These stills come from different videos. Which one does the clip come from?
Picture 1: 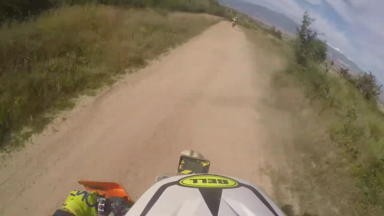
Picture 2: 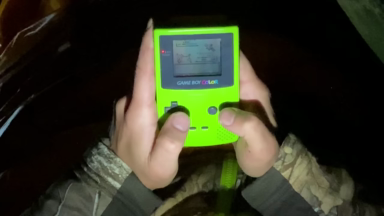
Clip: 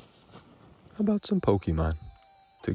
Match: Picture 2